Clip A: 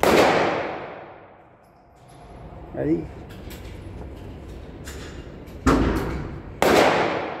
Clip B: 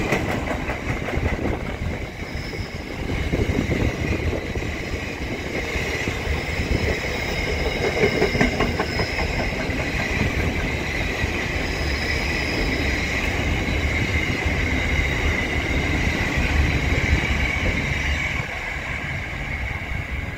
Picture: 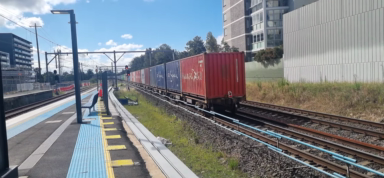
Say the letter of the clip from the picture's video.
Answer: B